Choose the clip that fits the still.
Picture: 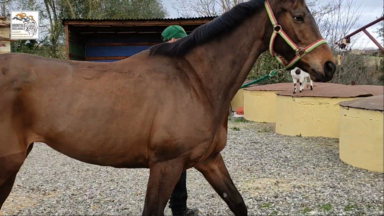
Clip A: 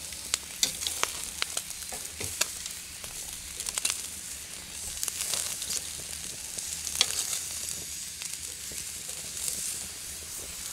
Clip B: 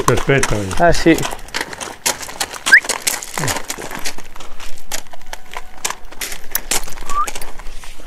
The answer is B